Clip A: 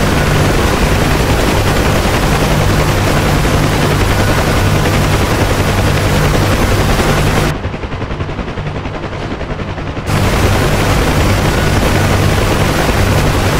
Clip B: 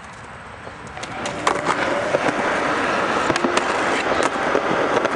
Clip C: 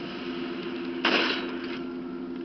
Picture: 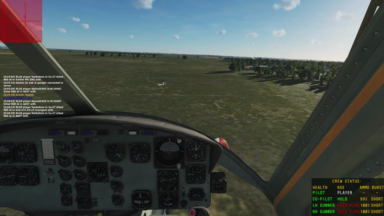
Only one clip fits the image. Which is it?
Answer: A